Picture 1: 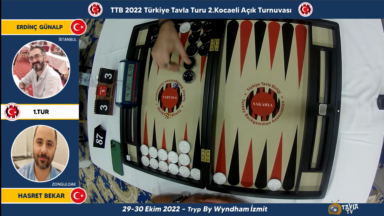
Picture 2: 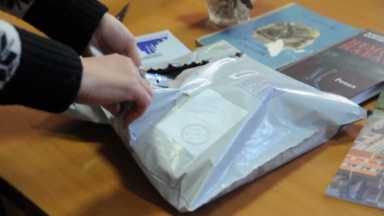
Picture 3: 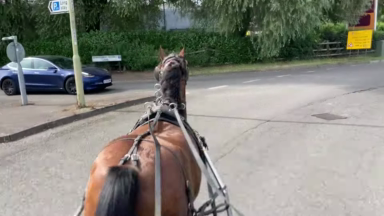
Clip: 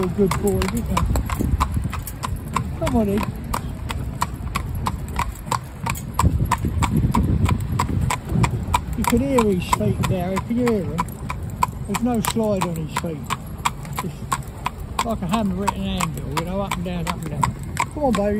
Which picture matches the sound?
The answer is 3